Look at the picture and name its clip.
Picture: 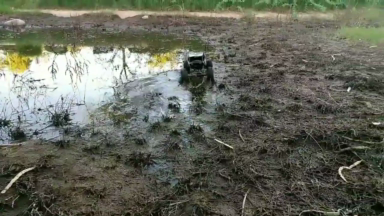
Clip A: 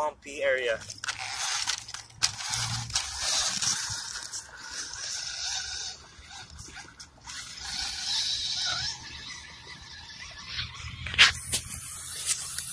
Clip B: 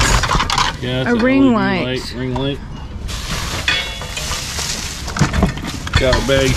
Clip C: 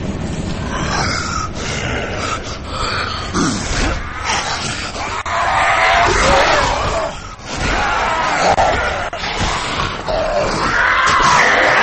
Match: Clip A